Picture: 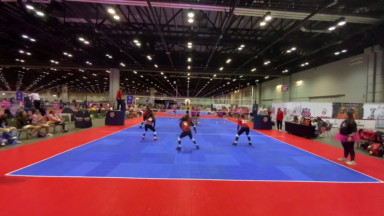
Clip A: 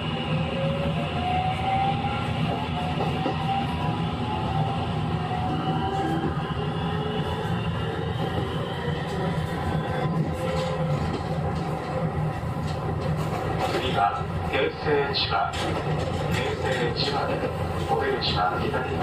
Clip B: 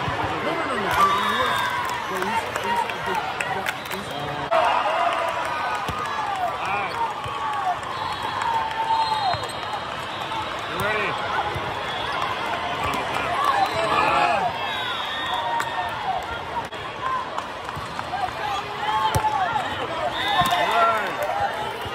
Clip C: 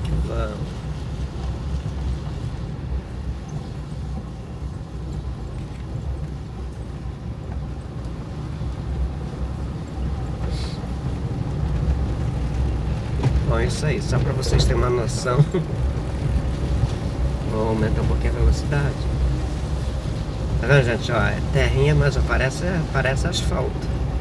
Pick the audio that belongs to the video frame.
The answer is B